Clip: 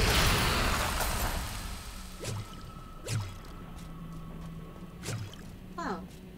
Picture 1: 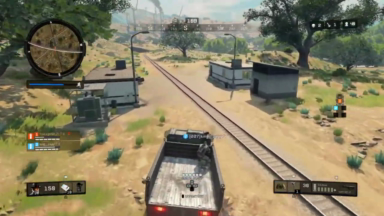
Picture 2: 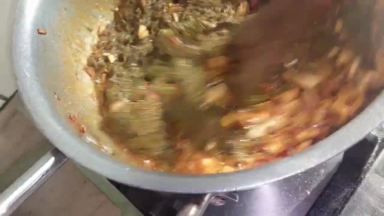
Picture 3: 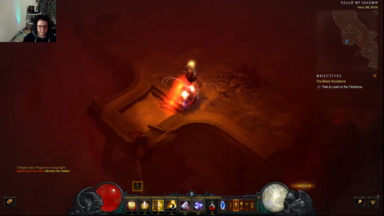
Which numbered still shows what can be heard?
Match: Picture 3